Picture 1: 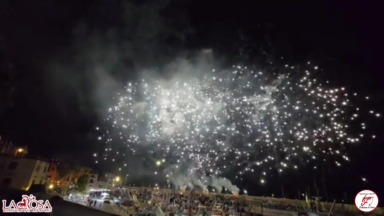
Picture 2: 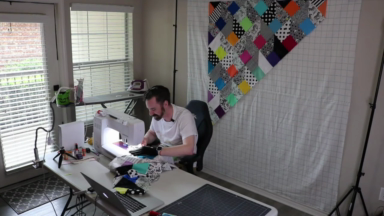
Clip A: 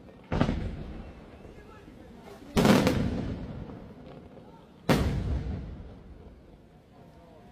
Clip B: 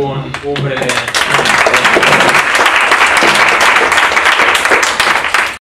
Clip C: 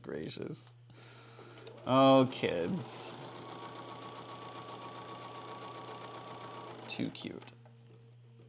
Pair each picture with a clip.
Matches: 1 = A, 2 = C